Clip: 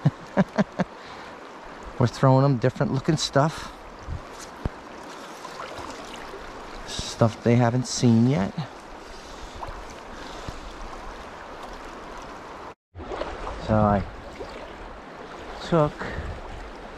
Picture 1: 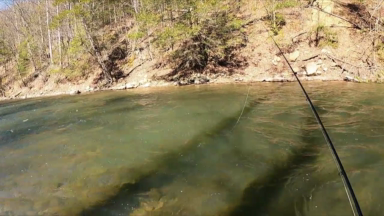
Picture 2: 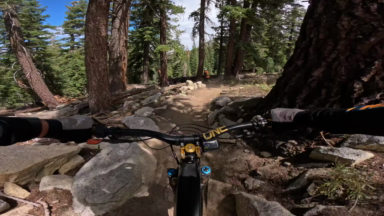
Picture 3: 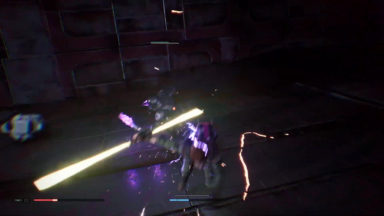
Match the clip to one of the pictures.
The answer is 1